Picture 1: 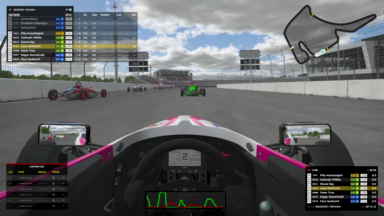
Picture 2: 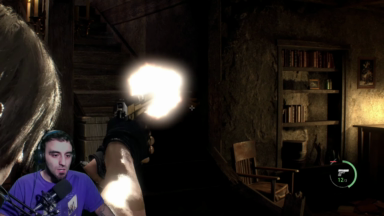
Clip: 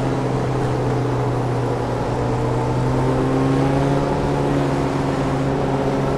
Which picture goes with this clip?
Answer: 1